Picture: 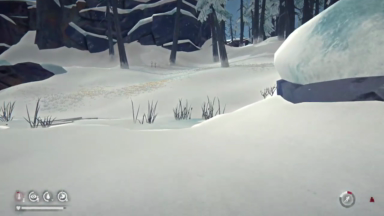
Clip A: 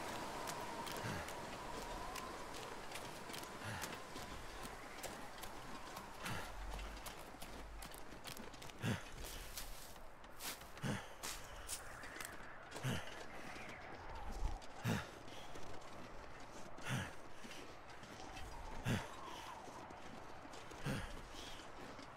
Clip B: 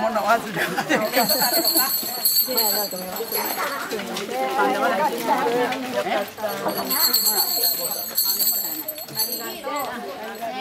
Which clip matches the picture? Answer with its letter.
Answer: A